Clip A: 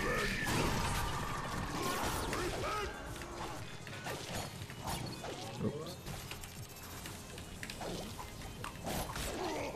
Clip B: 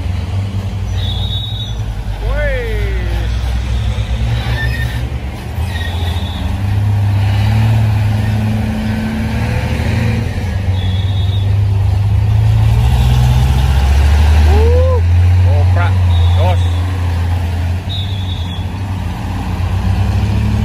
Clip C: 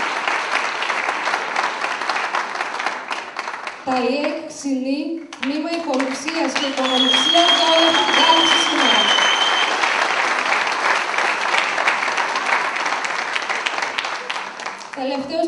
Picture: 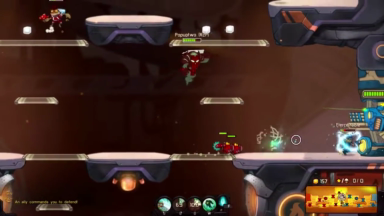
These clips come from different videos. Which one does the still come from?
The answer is A